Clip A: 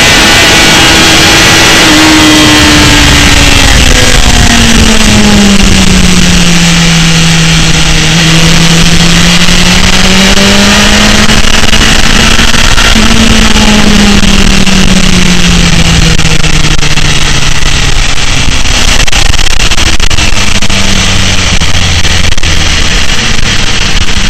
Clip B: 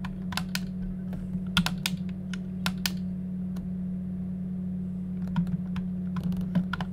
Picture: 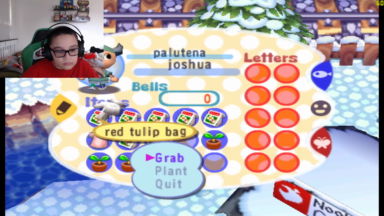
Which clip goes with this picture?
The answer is B